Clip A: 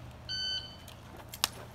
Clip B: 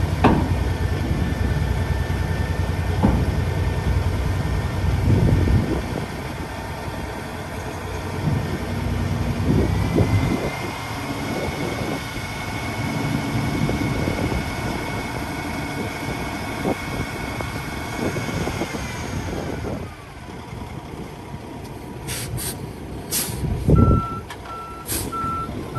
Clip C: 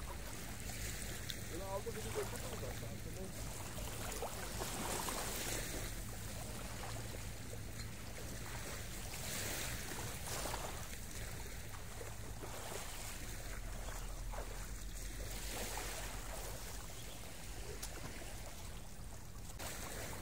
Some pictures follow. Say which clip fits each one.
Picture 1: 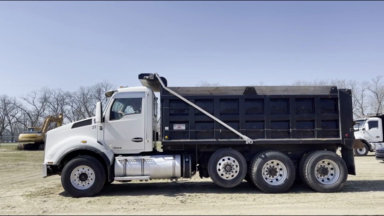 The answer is B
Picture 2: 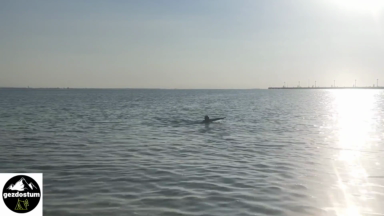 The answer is C